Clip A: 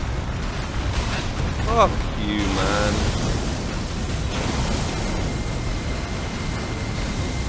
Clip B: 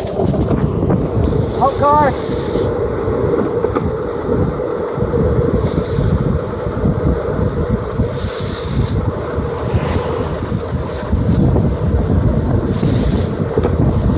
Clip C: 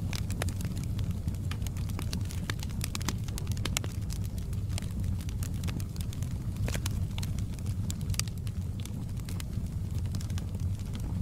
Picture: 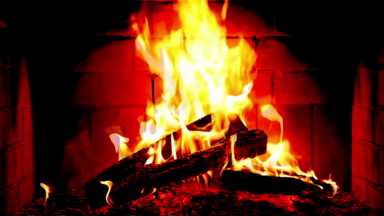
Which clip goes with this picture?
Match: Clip C